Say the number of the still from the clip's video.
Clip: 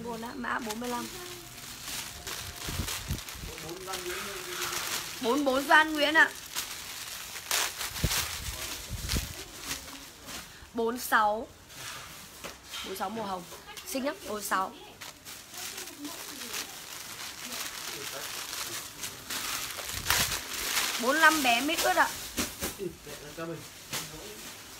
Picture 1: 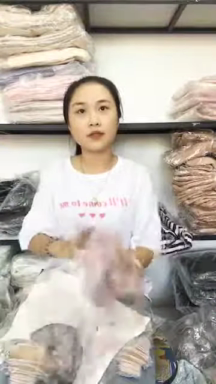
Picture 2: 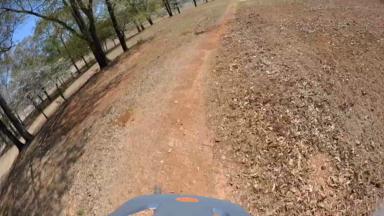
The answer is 1